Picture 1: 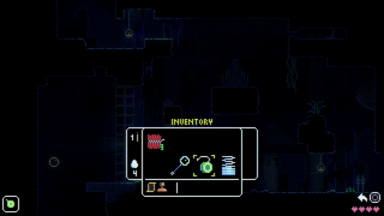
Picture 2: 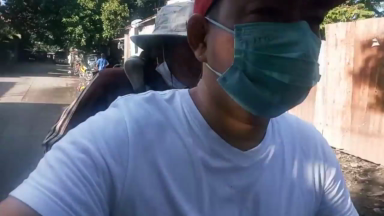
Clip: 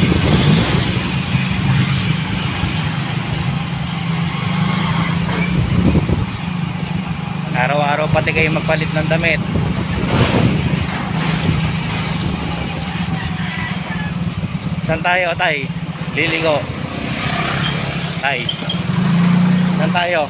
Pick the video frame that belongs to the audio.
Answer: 2